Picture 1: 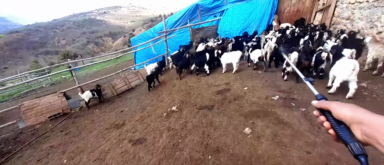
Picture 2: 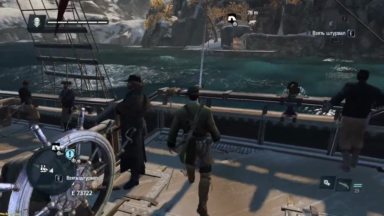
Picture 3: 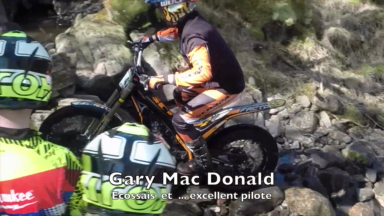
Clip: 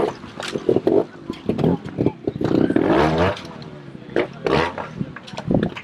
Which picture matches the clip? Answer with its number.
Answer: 3